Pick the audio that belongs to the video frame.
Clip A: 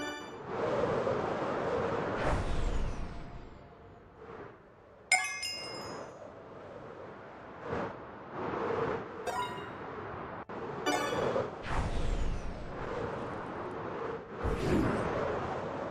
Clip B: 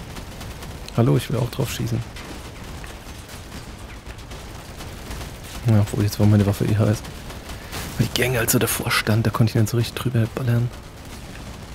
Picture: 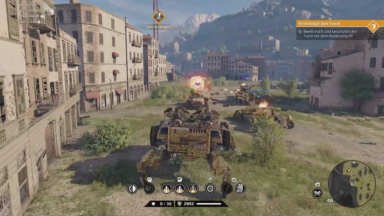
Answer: B